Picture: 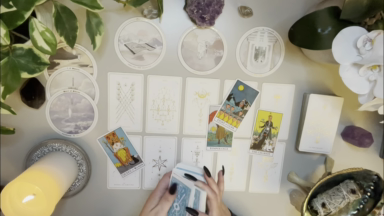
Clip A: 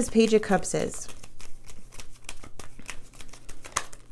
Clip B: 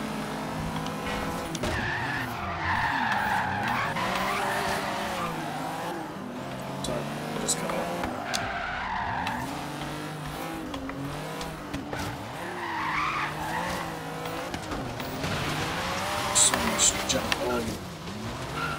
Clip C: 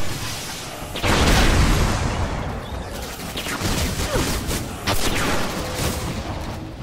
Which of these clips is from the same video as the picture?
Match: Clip A